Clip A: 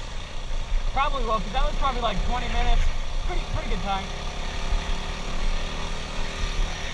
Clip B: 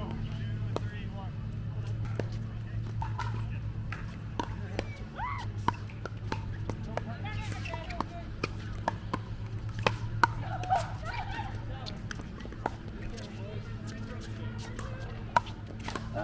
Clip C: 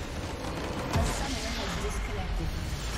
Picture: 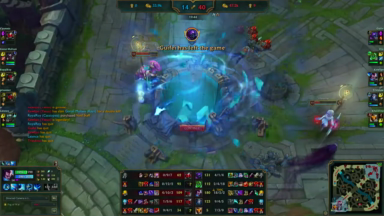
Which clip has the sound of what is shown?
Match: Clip C